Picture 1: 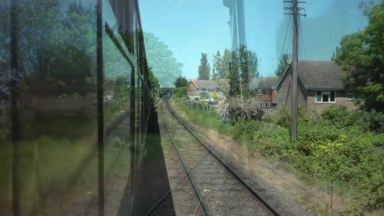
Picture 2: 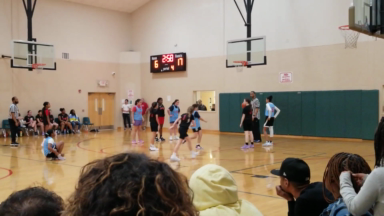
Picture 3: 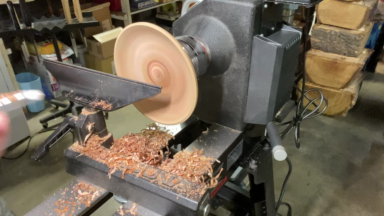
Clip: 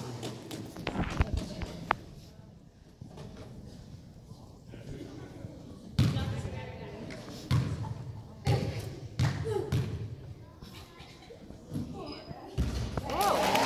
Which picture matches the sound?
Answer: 2